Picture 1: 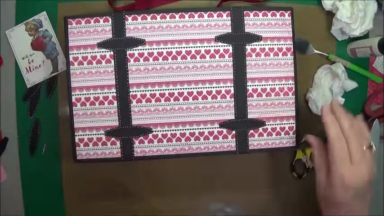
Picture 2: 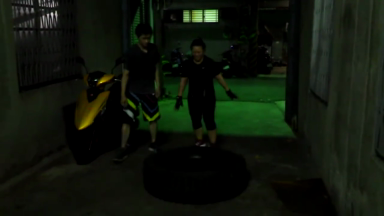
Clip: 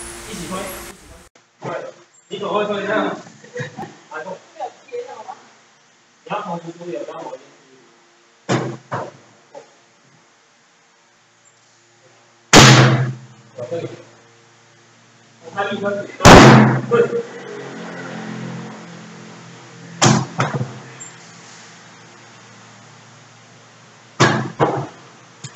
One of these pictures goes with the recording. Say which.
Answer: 2